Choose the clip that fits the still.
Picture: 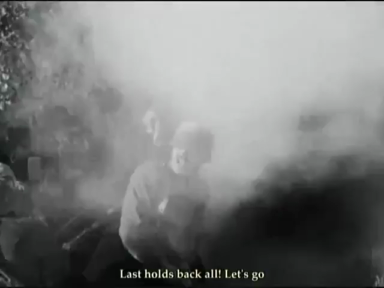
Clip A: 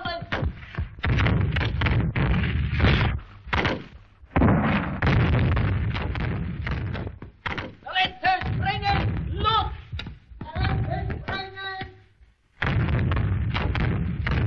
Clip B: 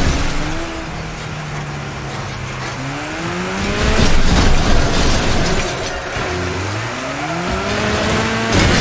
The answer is A